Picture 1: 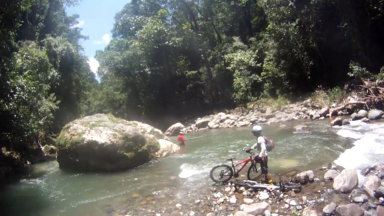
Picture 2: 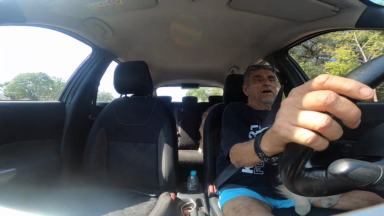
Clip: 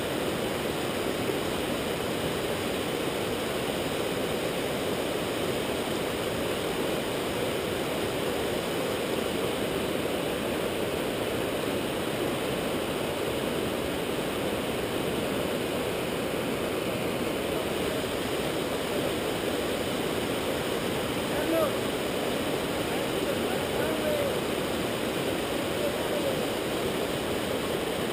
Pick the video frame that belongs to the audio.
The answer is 1